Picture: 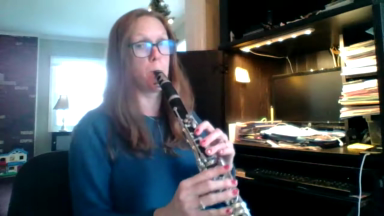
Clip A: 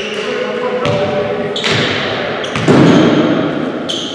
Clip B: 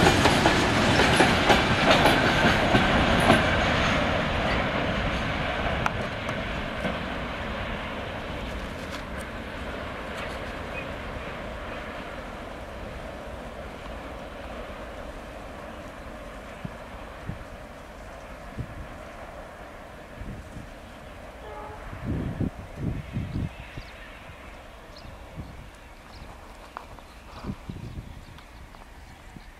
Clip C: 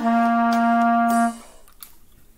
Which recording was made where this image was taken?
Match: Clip C